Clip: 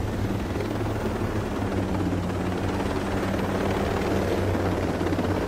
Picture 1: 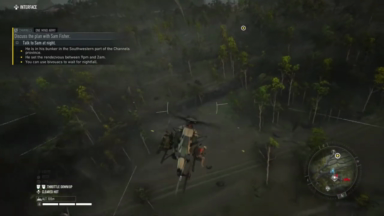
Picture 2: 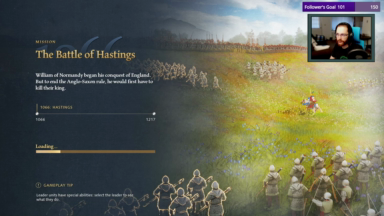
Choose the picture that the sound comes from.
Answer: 1